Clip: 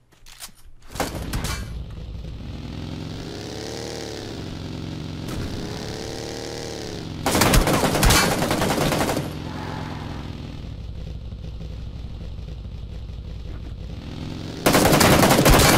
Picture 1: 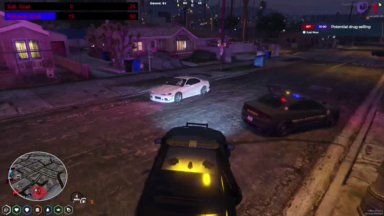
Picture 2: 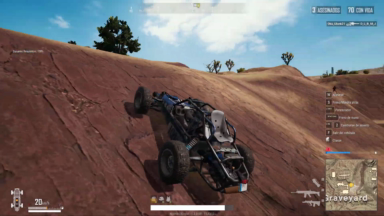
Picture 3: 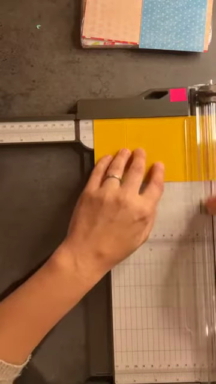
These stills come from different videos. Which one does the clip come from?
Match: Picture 2